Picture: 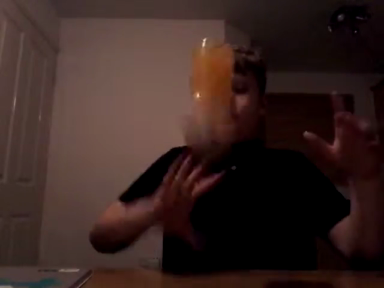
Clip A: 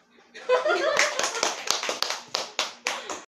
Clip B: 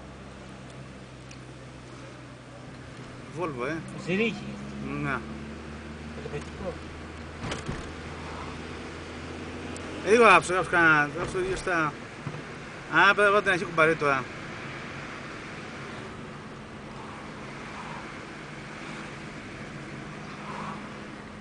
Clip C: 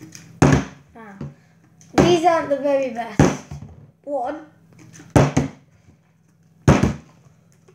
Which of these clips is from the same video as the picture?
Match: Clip C